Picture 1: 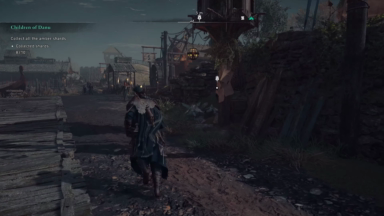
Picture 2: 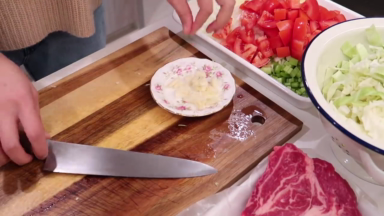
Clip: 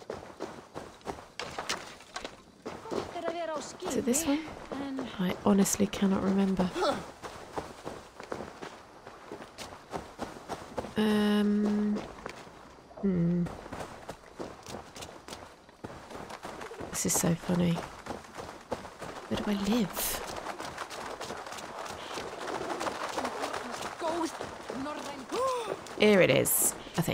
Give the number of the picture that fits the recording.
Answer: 1